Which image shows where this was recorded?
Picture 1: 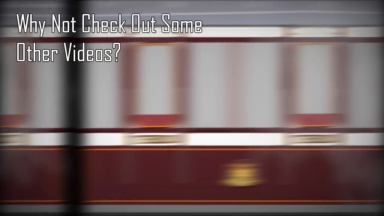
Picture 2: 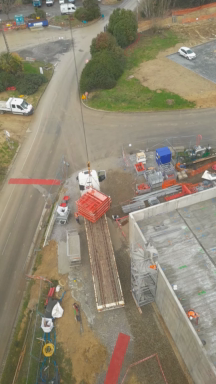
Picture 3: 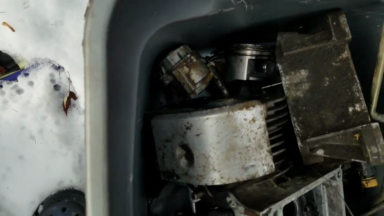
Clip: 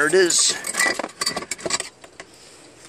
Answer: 3